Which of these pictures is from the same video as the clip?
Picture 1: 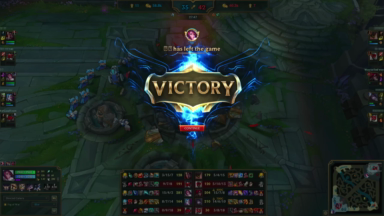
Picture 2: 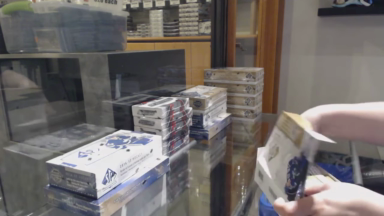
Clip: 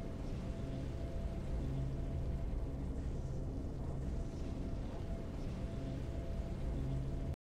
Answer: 1